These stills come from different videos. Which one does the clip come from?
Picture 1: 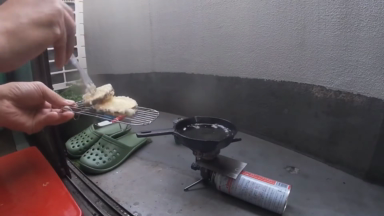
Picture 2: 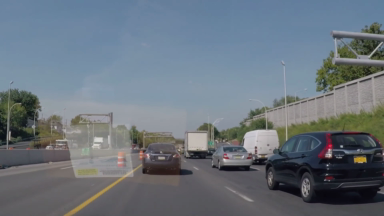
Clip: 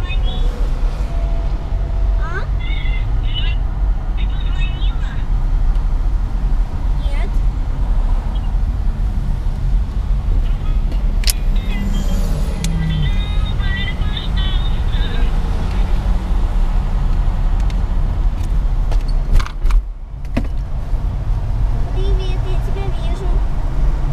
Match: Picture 2